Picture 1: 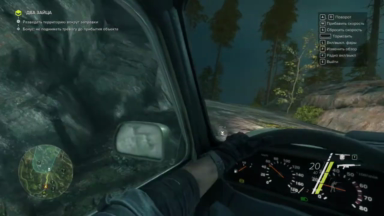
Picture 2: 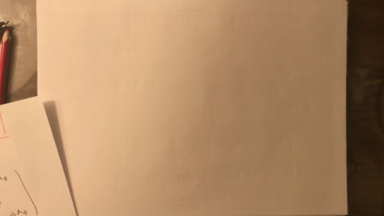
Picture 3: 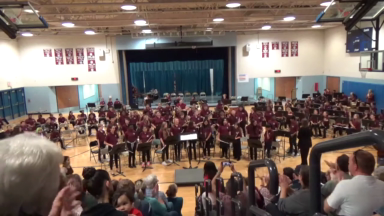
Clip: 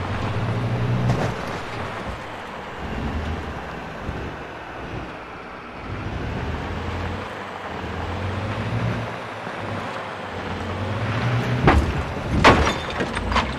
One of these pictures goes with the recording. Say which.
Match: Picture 1